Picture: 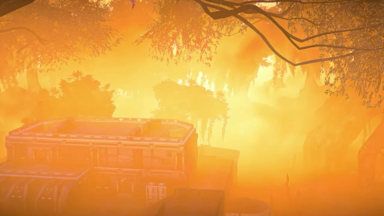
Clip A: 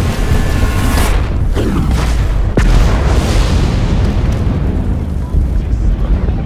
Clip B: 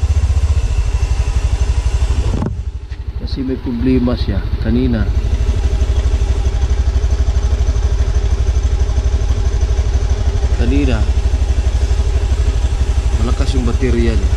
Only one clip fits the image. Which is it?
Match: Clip A